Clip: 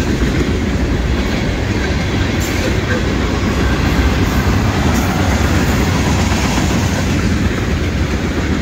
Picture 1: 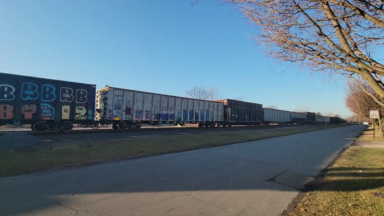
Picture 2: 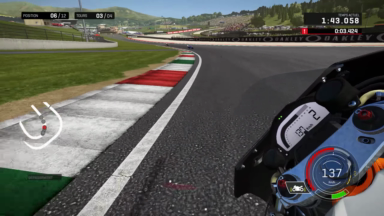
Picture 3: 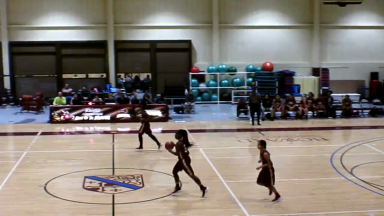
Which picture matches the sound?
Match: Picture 1